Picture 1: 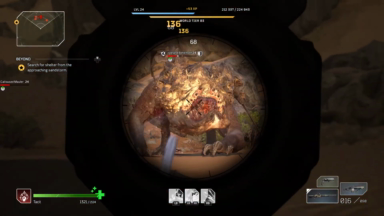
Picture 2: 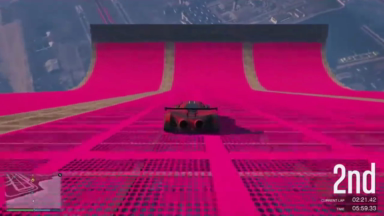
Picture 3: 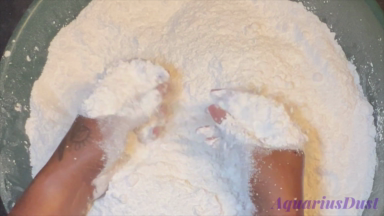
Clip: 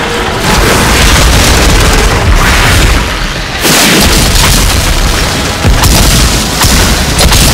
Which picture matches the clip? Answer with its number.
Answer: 1